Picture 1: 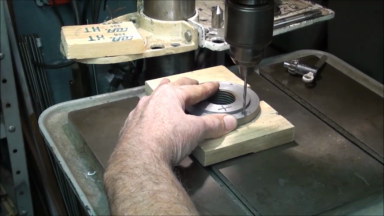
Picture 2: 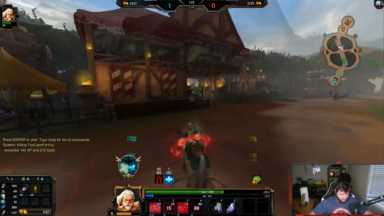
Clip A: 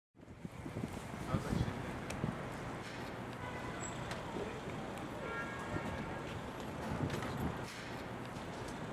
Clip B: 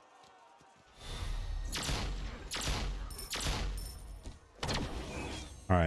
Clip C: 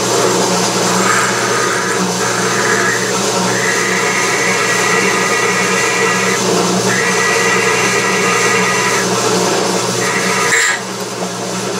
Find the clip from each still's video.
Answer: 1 C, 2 B